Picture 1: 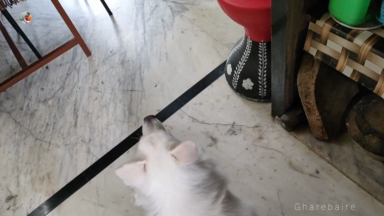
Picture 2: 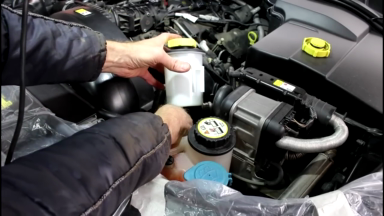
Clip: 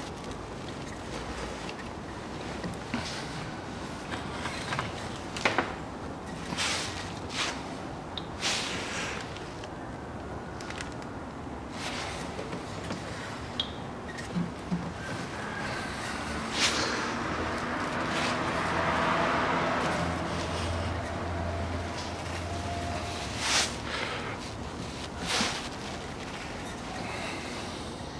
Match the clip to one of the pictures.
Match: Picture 2